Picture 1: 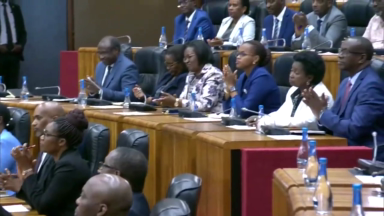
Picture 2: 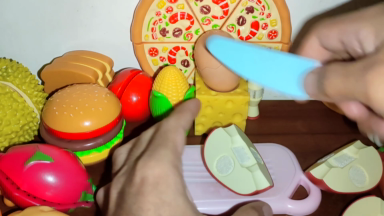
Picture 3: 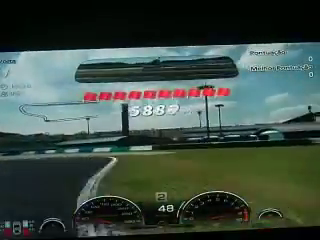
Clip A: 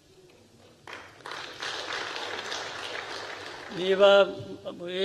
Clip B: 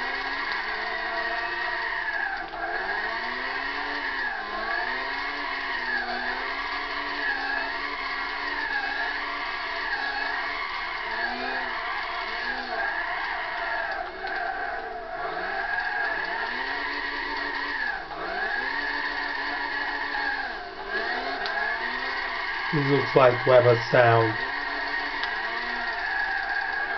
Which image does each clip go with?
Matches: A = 1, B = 3